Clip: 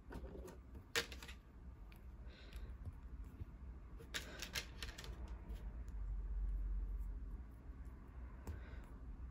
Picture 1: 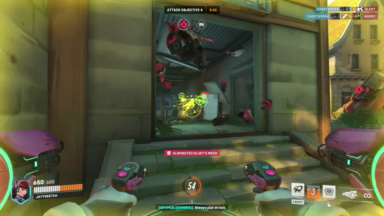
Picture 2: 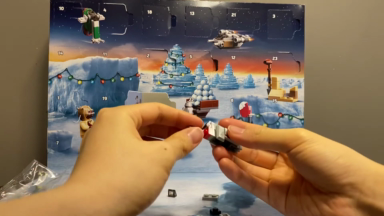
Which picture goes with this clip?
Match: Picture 2